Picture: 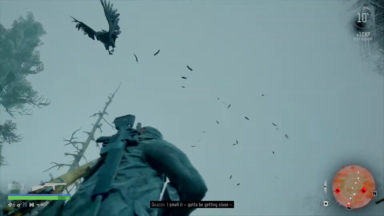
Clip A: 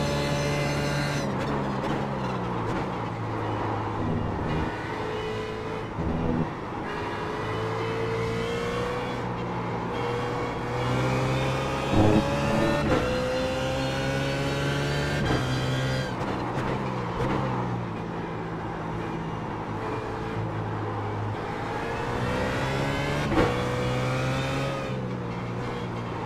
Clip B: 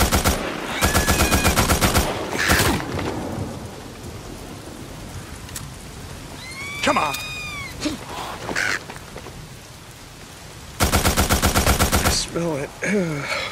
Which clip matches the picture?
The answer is B